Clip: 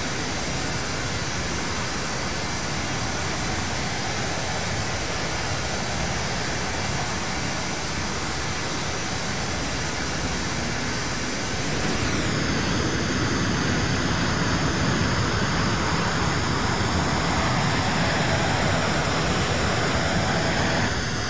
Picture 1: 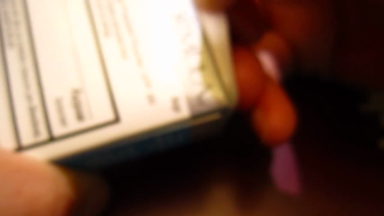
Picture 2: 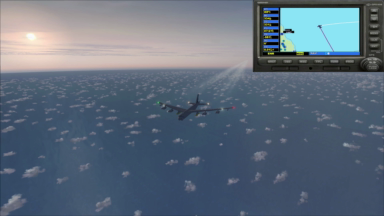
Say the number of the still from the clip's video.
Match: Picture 2